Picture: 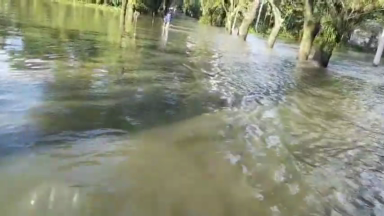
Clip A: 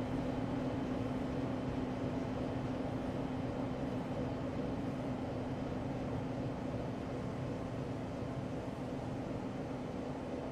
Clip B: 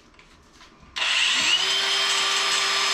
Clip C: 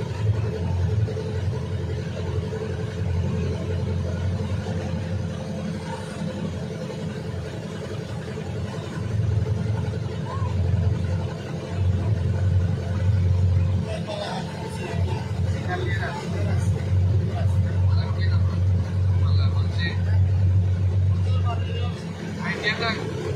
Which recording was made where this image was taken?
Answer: C